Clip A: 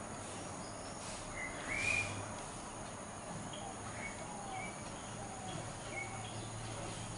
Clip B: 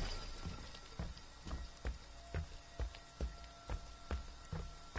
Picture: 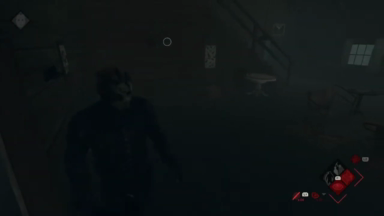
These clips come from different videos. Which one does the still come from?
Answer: B